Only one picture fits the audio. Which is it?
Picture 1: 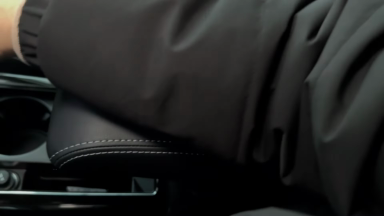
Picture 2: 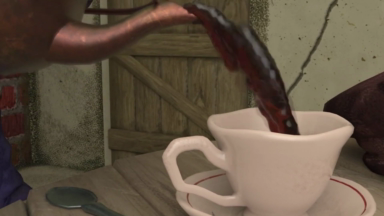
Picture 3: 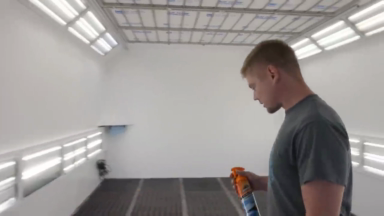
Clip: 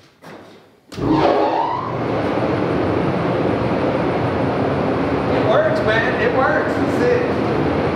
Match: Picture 3